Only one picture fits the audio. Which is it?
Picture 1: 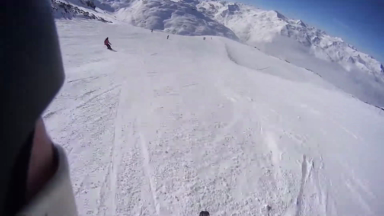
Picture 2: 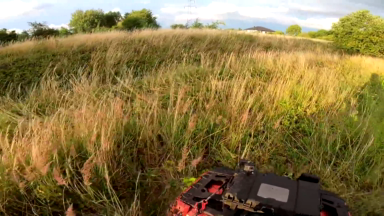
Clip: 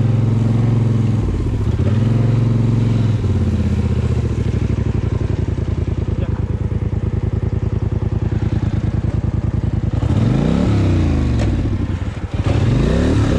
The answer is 2